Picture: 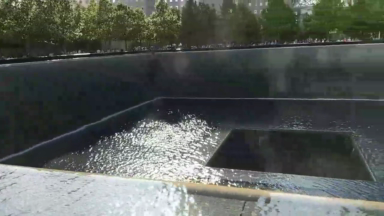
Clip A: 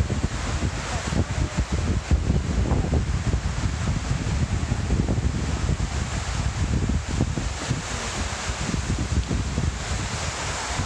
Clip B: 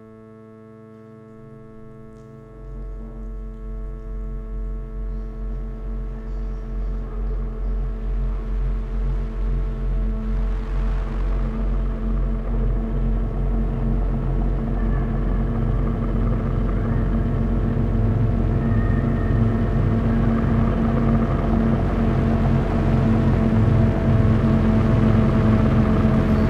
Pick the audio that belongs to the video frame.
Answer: A